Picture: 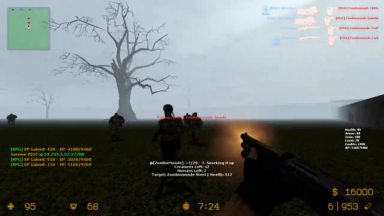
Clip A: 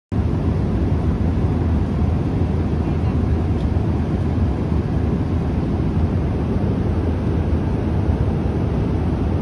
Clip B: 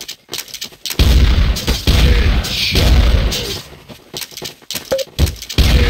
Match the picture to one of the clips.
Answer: B